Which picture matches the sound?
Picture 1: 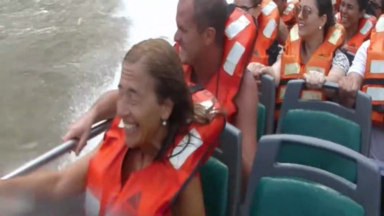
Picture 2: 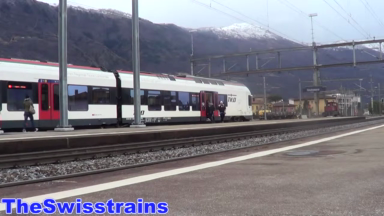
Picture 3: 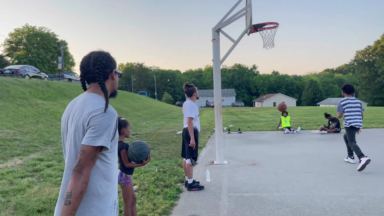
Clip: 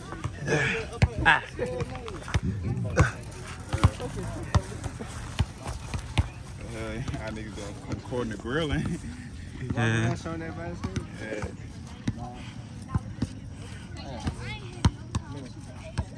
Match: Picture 3